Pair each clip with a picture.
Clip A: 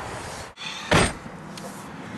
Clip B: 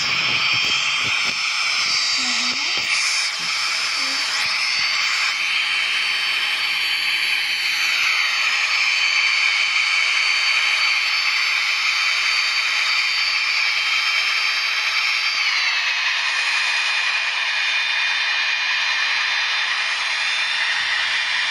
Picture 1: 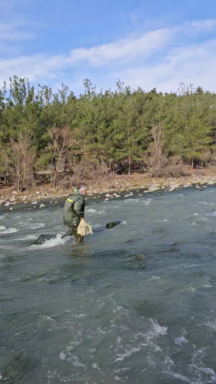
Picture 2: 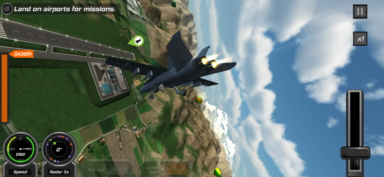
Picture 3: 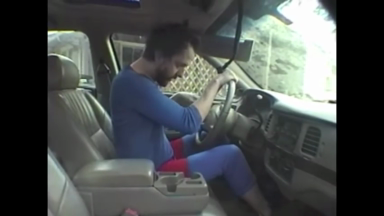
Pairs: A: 3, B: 2